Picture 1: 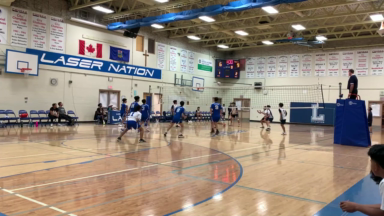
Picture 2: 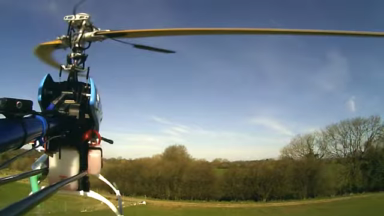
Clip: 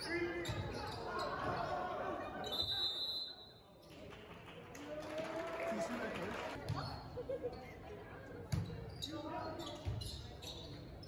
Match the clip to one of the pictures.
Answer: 1